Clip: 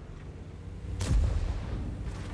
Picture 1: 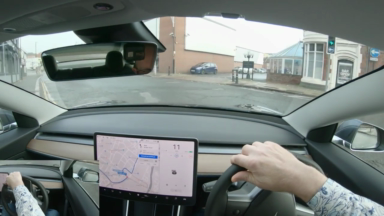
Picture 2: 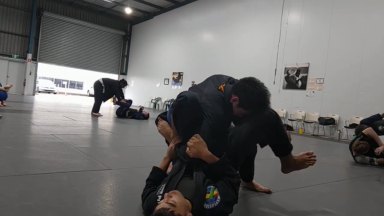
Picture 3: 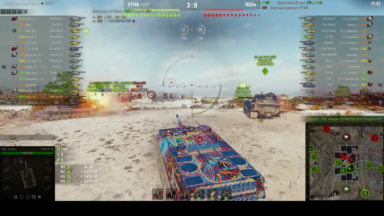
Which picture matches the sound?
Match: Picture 3